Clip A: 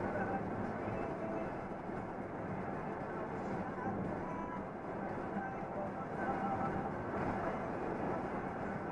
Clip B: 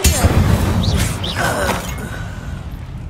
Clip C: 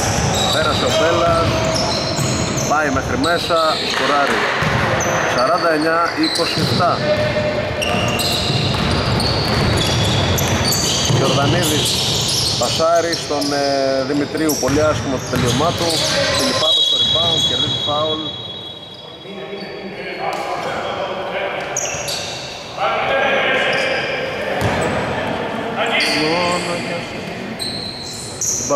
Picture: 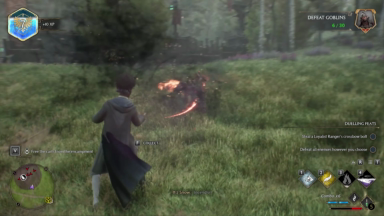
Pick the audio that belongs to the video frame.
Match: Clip B